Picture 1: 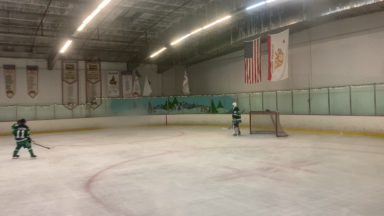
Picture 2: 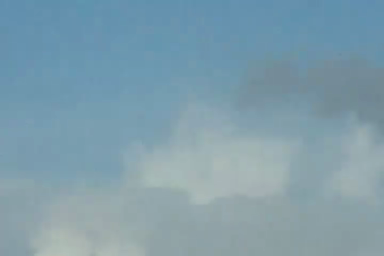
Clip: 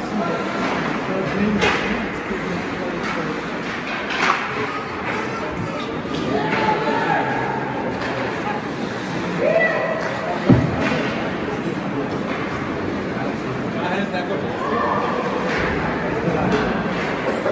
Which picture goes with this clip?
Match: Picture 1